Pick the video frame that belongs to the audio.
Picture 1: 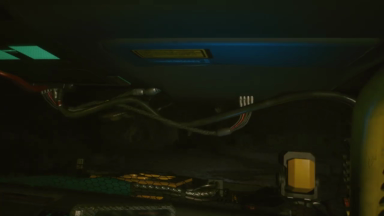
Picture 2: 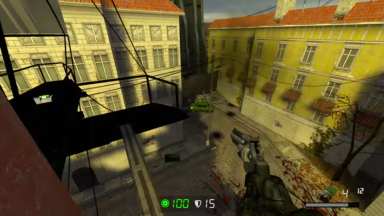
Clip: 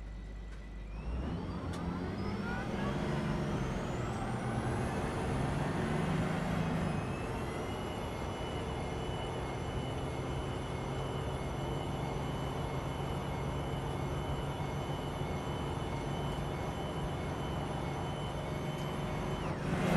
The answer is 1